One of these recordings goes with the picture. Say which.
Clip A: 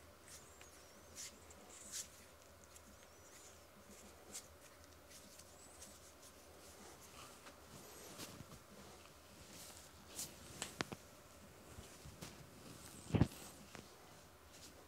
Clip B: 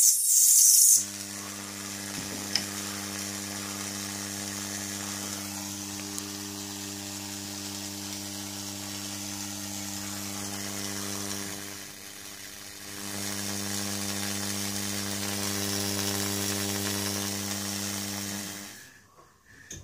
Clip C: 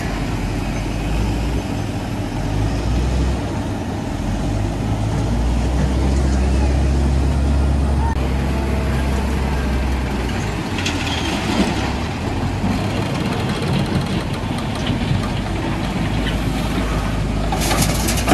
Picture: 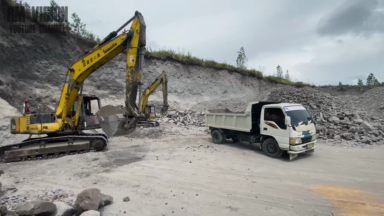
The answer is C